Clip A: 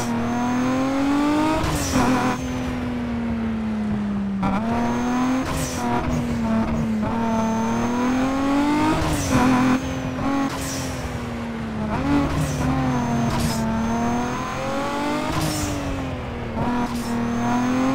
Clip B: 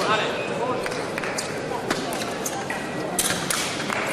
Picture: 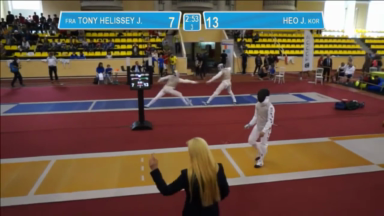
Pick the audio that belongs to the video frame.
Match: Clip B